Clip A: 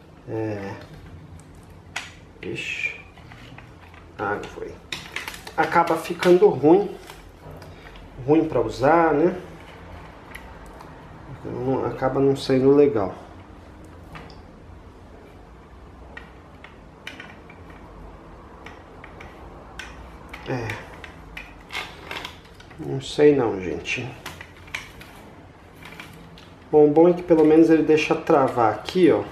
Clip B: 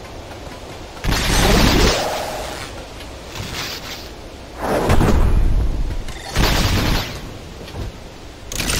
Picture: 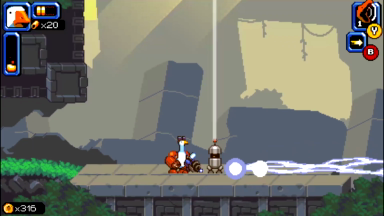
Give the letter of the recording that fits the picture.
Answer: B